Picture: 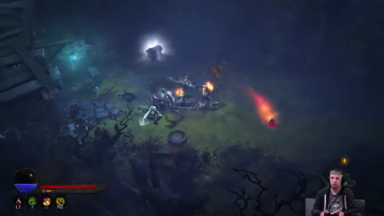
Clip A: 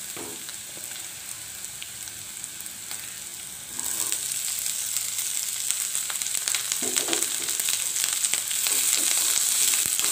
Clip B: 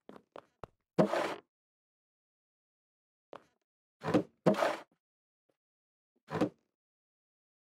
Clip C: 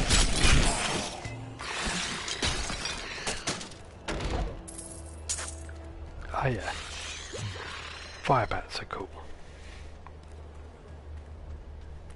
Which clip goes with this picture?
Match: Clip C